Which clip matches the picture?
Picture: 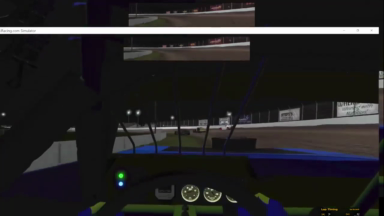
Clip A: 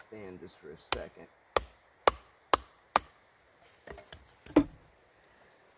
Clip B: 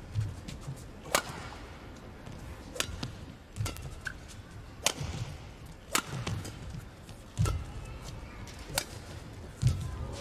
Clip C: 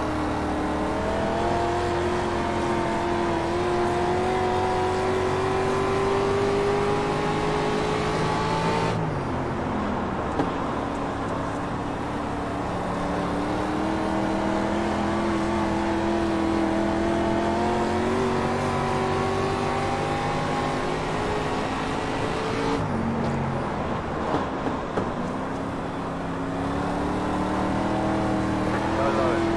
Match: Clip C